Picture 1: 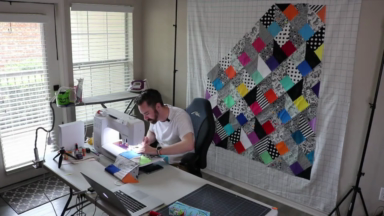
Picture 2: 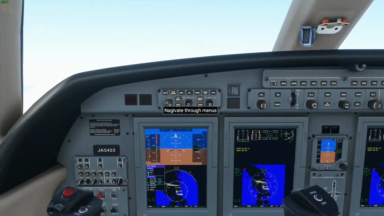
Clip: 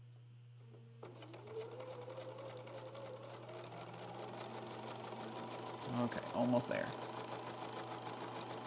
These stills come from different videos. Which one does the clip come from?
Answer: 1